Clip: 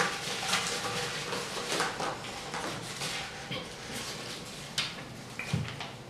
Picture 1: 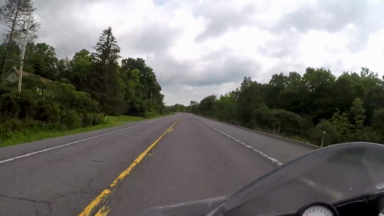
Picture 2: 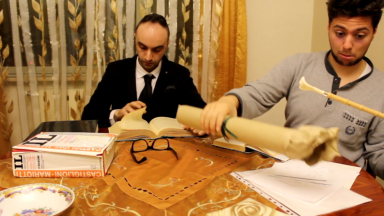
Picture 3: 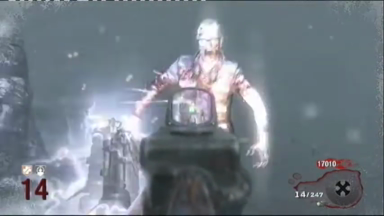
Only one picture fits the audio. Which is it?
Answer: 2